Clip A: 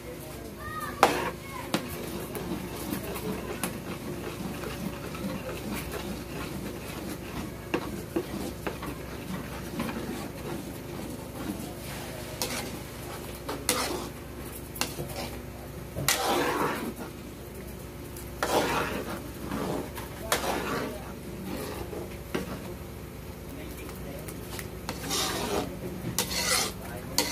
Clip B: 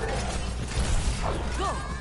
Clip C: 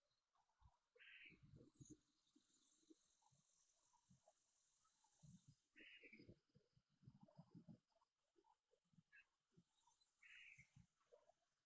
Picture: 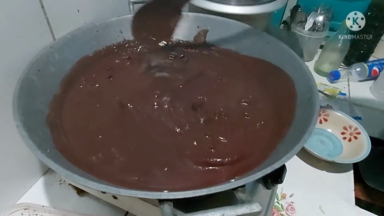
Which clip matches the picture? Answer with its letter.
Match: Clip A